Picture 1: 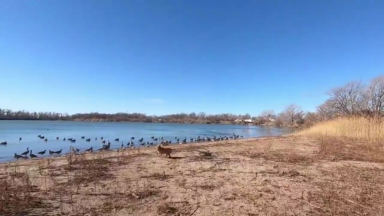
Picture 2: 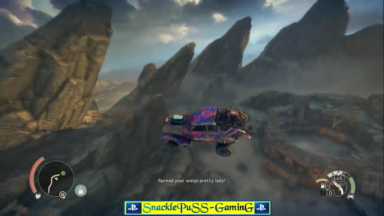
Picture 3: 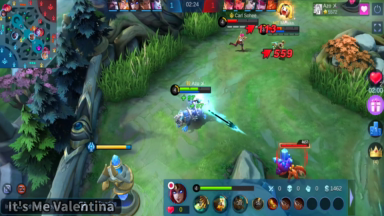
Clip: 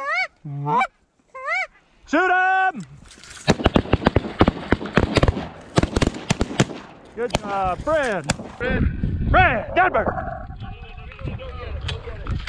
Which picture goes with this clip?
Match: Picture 1